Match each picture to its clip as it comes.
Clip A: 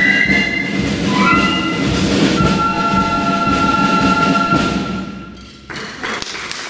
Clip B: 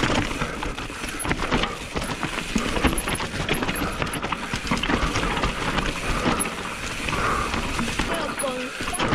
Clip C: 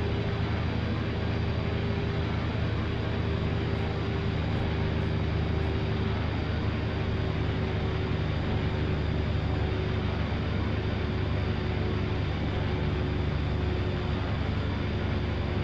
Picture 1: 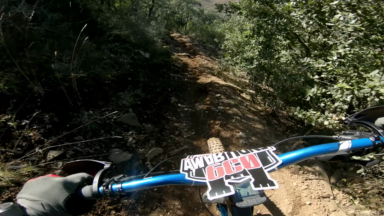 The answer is B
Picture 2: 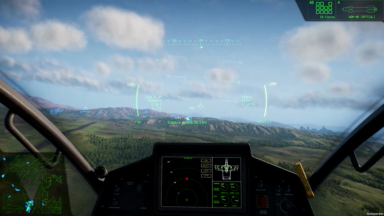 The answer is C